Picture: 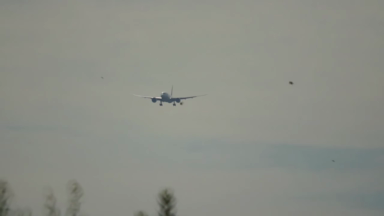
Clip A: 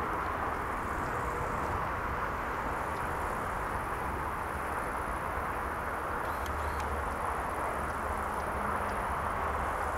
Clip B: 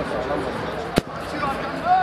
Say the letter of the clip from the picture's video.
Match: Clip A